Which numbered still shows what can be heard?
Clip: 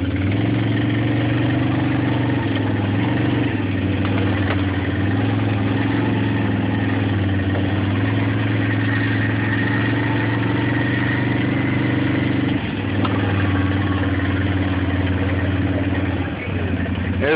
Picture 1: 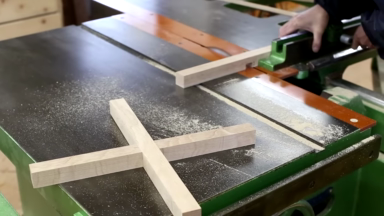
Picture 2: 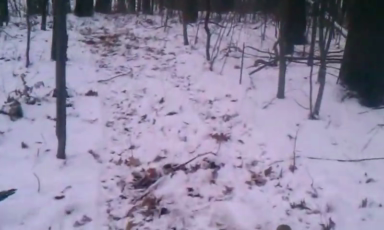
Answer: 2